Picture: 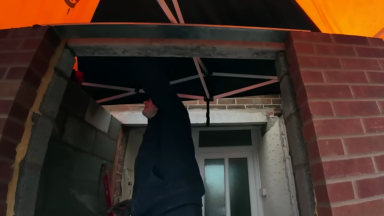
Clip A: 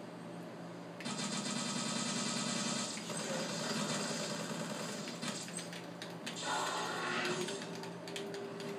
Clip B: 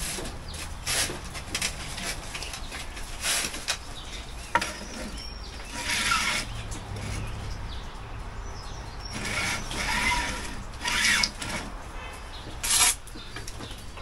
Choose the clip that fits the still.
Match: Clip B